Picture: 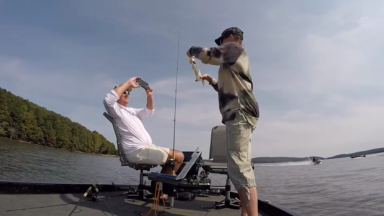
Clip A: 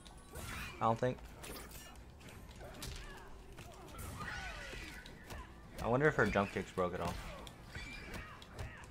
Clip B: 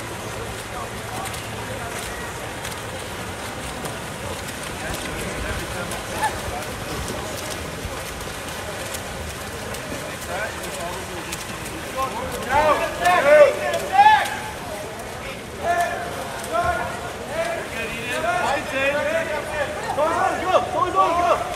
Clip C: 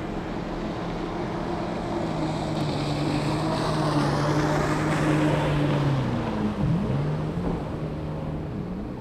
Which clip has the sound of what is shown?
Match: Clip C